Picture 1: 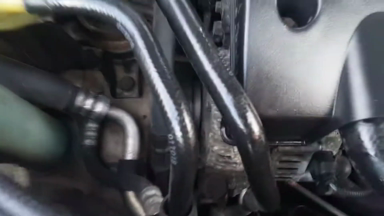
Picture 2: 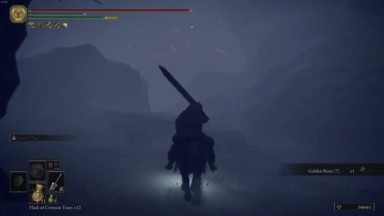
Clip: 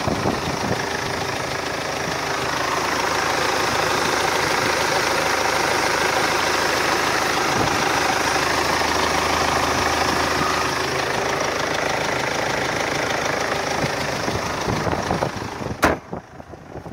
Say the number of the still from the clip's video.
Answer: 1